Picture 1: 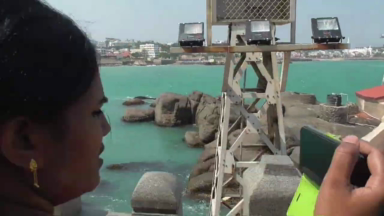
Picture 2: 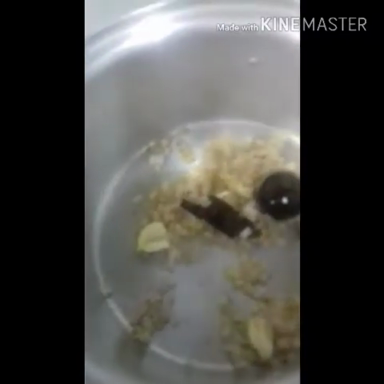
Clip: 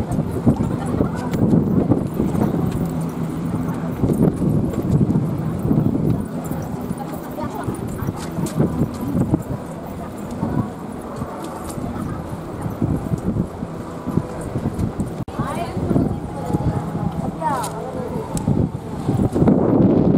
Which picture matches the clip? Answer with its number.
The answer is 1